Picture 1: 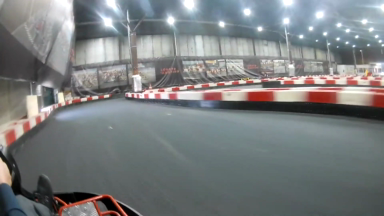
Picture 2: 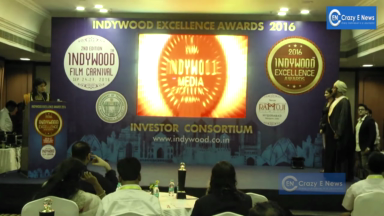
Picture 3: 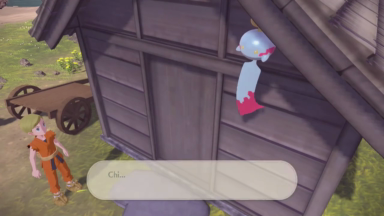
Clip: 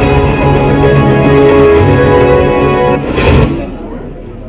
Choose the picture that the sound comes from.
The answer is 2